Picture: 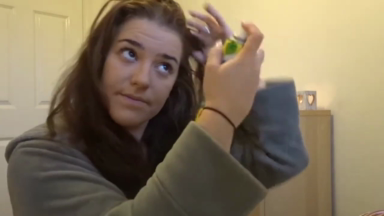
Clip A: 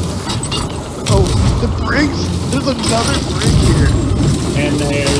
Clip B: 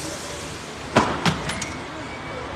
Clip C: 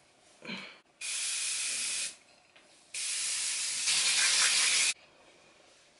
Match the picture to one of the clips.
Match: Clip C